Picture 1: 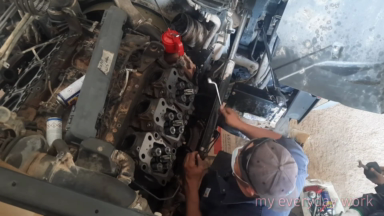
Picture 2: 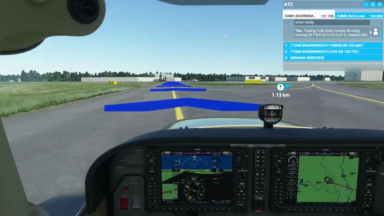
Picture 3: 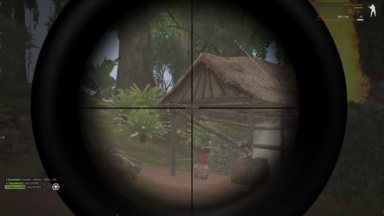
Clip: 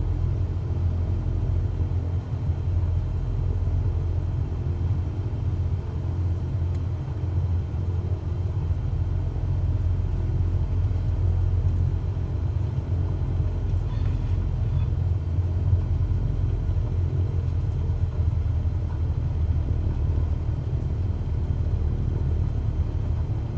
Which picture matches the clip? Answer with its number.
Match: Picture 2